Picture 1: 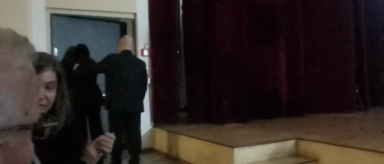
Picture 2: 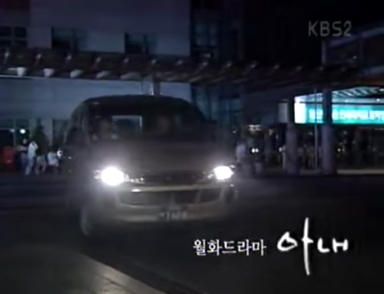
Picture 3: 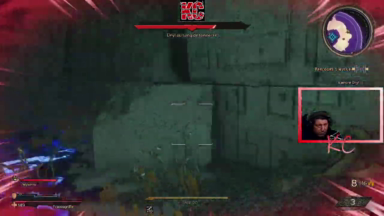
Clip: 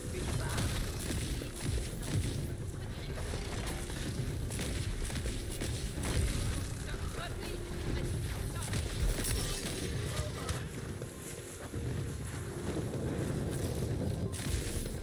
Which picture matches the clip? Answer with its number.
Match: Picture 3